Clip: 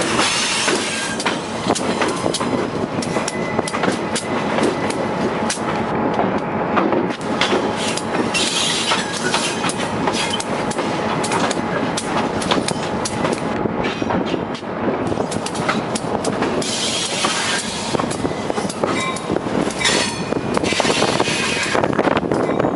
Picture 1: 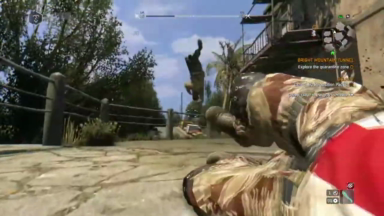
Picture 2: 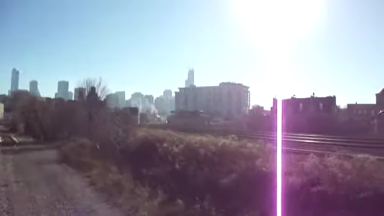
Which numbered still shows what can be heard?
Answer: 2